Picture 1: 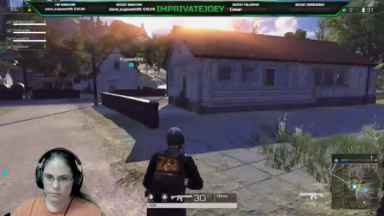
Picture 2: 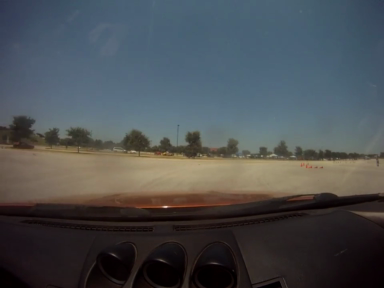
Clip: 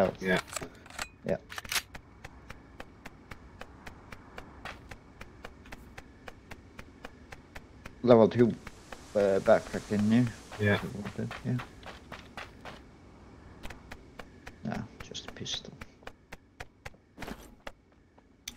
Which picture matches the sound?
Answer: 1